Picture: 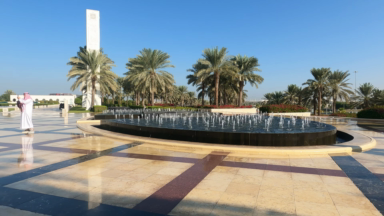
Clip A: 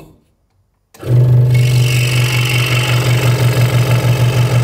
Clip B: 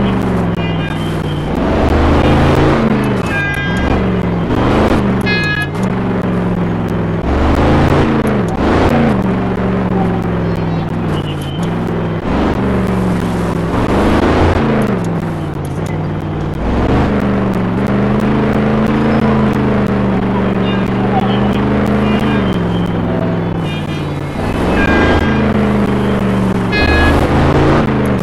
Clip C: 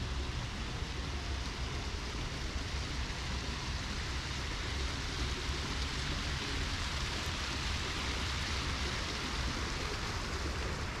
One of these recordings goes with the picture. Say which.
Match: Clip C